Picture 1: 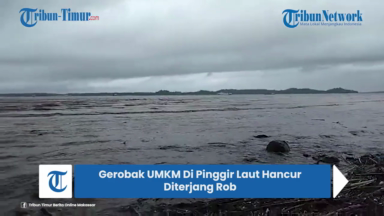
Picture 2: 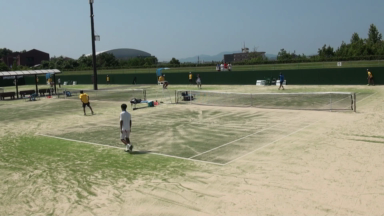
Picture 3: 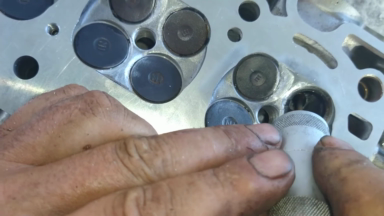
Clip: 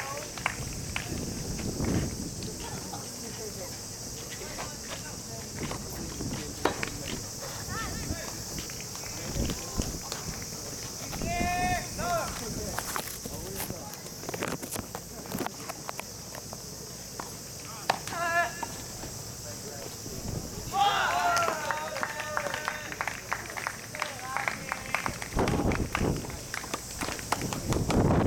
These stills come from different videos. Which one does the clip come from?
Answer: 2